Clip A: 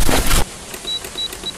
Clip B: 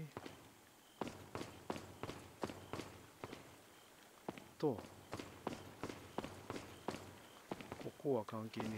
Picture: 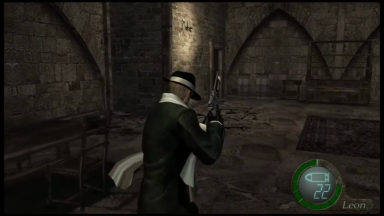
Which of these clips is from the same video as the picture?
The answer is B